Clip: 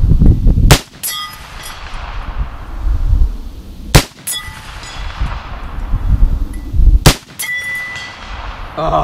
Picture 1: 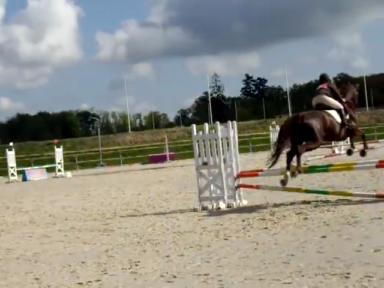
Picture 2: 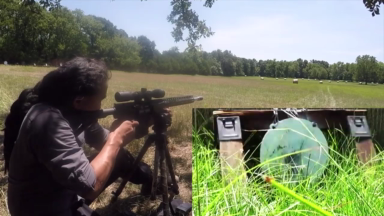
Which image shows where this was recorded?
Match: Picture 2